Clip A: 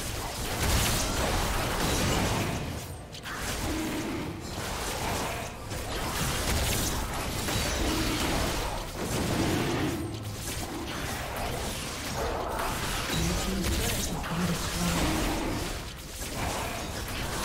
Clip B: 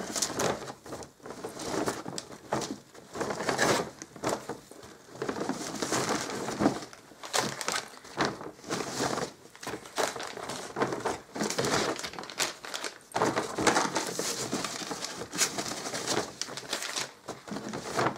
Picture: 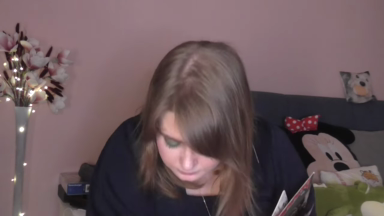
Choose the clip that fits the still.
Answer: B